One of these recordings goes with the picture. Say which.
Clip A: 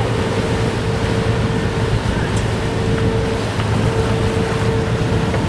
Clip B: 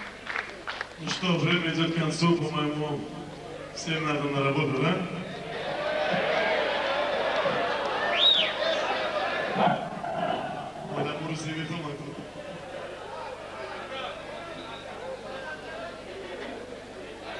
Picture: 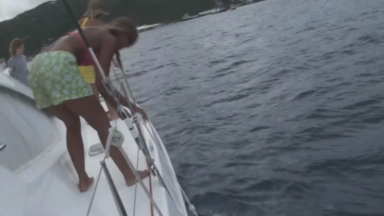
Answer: A